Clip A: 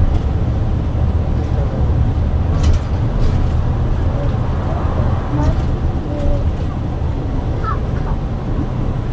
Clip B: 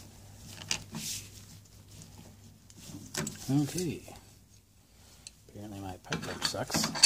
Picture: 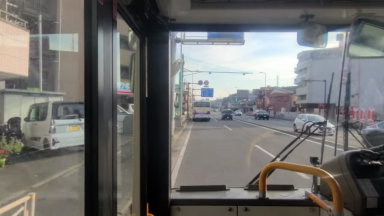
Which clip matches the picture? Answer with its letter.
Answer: A